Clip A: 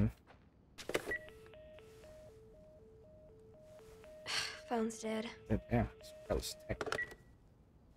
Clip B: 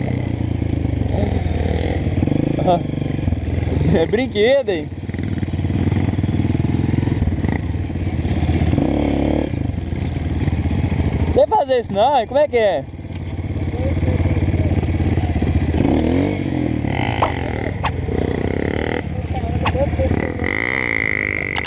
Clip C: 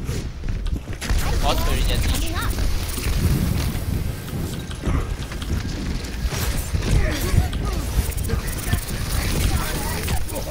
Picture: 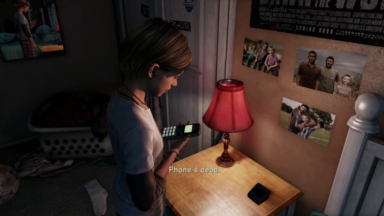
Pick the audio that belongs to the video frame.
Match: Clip A